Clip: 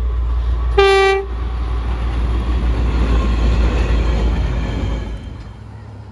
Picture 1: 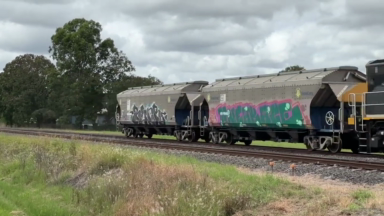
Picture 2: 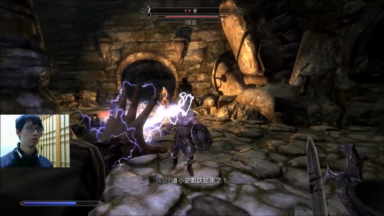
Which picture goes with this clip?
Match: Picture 1